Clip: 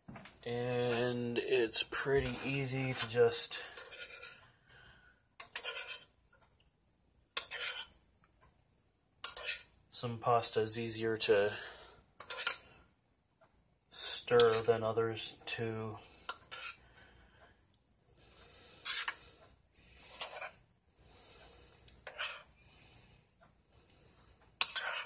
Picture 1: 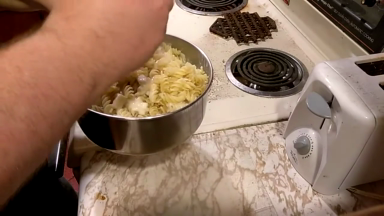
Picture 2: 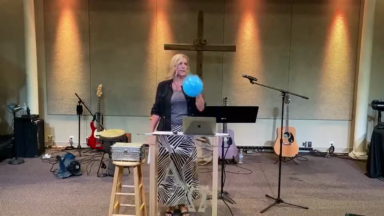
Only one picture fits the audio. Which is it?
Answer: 1